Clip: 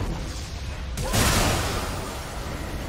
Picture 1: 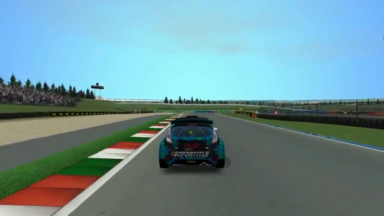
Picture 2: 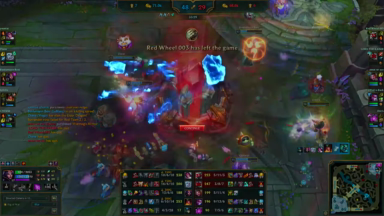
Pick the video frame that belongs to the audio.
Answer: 2